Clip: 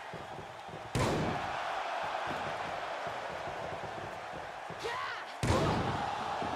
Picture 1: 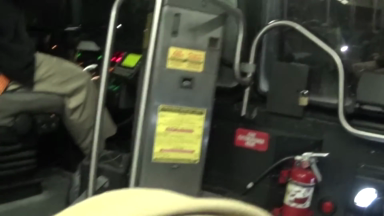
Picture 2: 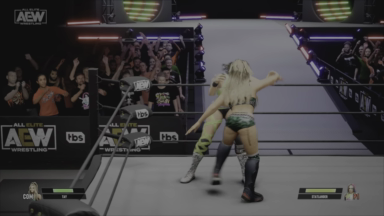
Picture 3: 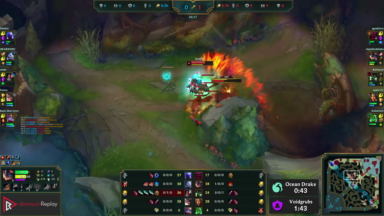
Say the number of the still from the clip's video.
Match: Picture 2